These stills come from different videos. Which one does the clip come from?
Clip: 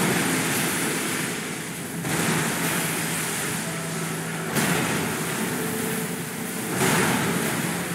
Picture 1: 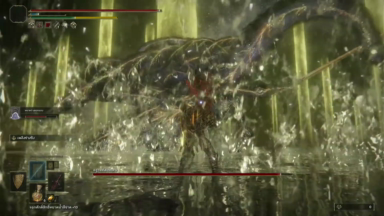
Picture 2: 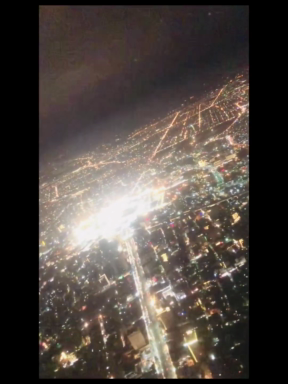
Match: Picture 1